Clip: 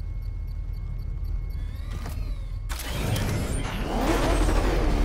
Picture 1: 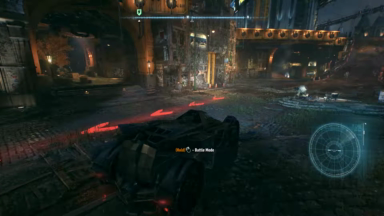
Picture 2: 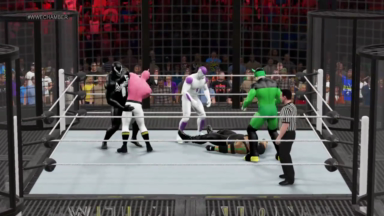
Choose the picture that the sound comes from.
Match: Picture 1